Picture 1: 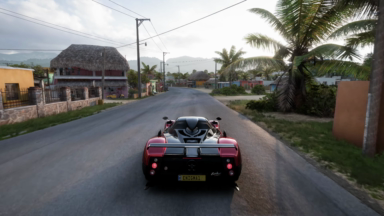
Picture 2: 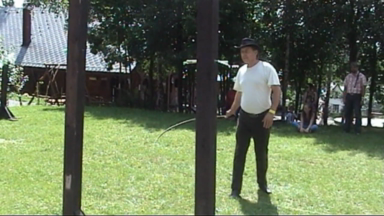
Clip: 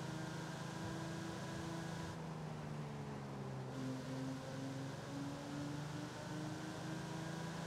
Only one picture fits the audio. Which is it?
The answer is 1